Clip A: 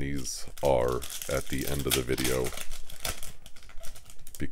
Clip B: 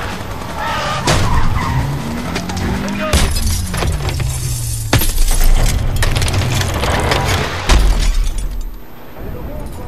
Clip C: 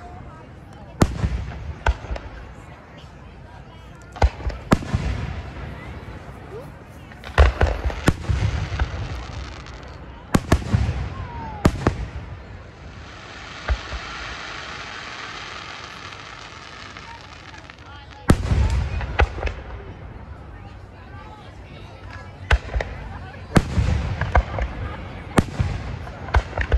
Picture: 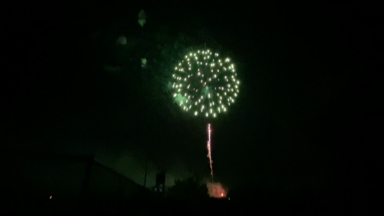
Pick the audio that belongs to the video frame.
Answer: C